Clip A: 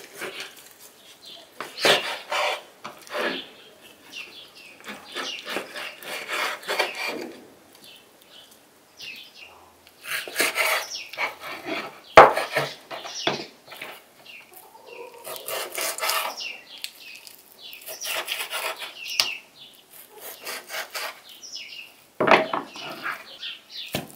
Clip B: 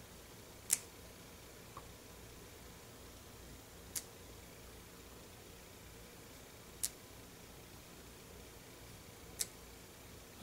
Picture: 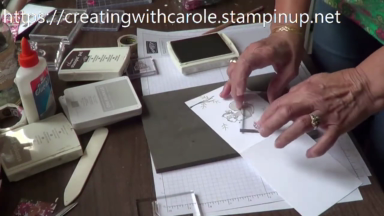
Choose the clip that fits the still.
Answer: B